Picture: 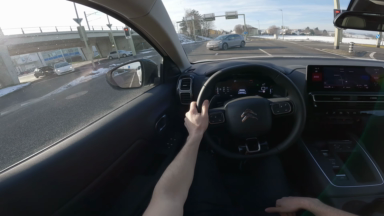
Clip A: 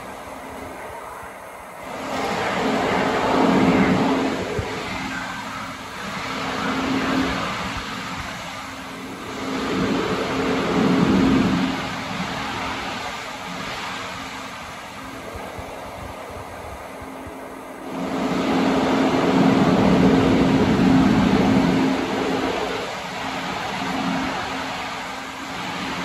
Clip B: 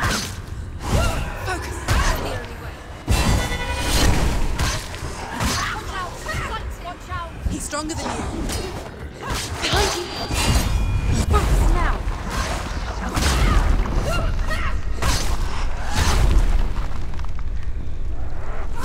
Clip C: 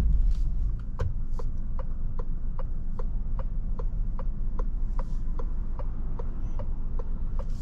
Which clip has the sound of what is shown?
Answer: C